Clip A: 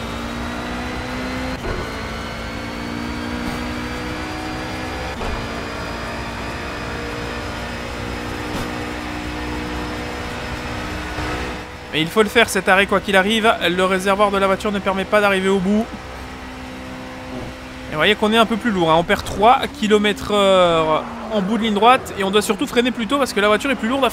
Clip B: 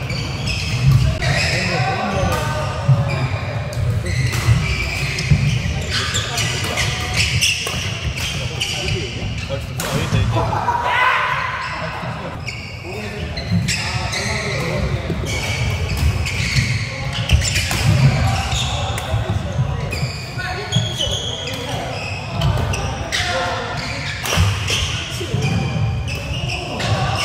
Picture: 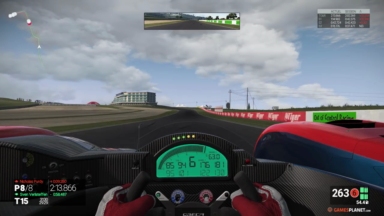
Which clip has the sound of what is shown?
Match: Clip A